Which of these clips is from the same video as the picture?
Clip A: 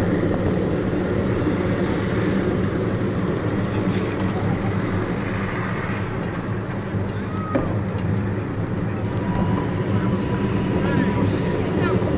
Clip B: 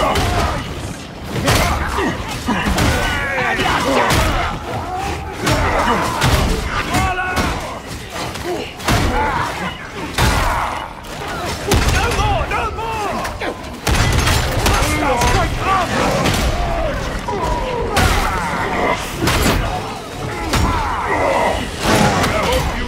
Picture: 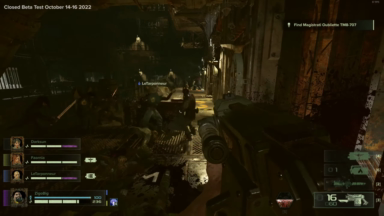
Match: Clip B